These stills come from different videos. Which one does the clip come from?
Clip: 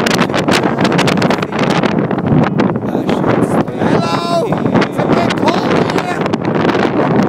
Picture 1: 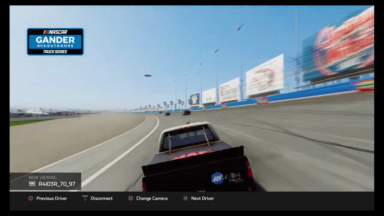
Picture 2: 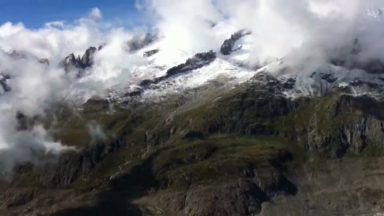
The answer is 2